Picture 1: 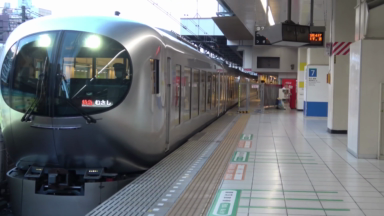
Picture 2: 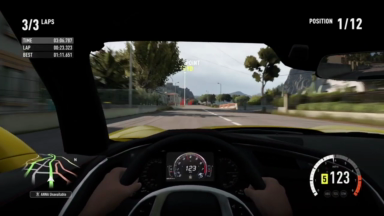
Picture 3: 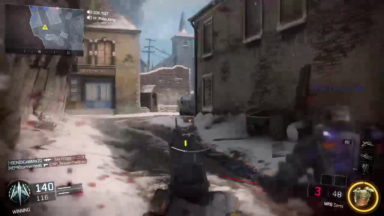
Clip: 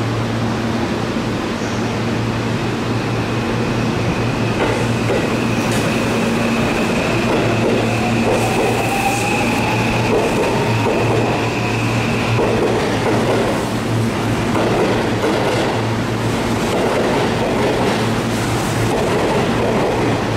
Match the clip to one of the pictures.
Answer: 1